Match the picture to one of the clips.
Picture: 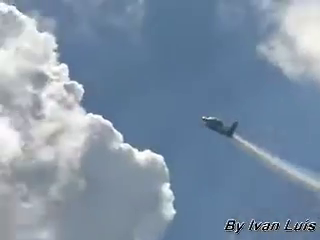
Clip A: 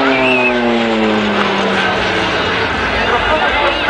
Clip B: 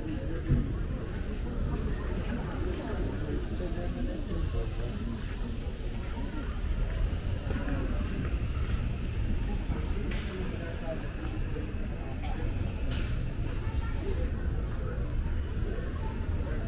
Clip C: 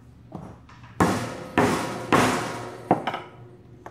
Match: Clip A